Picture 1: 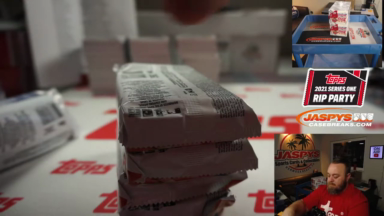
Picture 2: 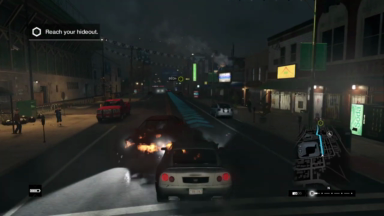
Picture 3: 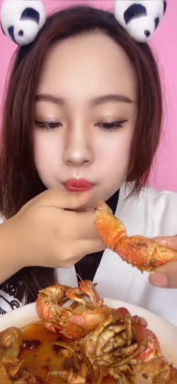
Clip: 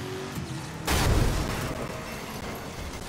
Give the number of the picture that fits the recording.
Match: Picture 2